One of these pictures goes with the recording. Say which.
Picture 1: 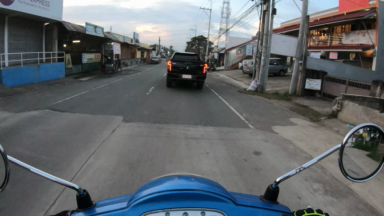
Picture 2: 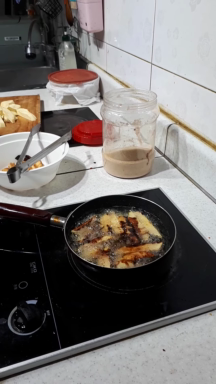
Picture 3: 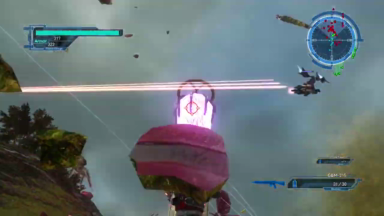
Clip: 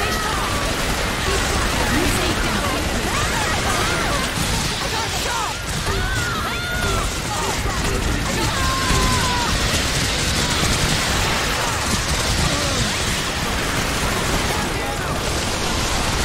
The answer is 3